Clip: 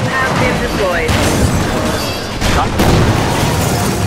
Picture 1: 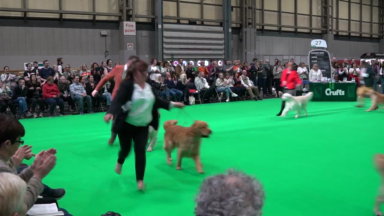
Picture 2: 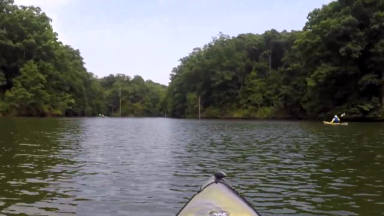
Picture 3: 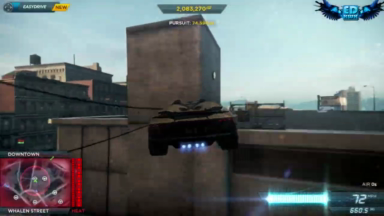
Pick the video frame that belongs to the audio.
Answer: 3